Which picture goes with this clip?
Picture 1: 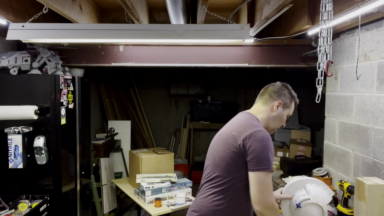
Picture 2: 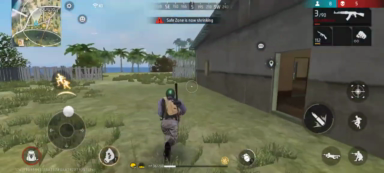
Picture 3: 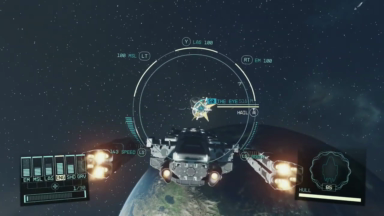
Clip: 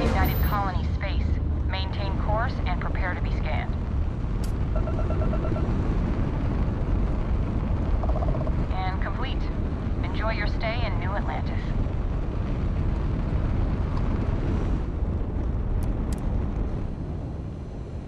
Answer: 3